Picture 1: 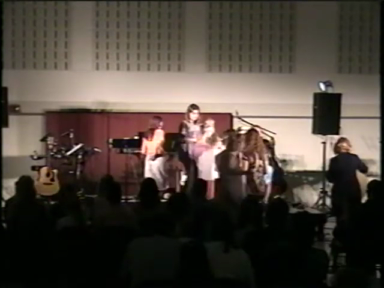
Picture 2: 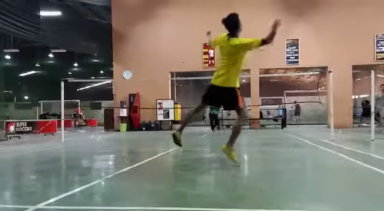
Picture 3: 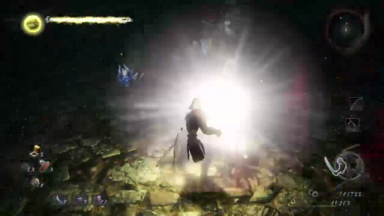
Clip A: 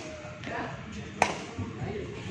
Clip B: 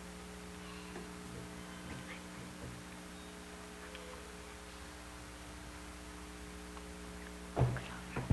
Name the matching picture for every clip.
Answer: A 2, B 1